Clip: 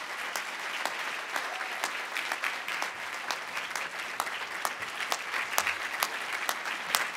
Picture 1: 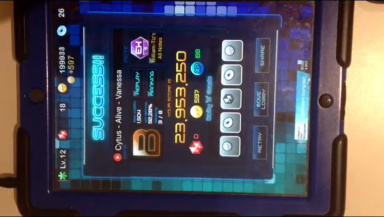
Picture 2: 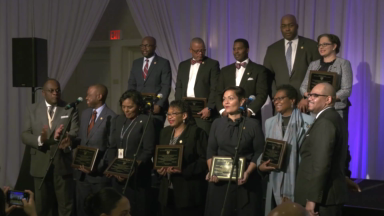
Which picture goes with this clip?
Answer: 2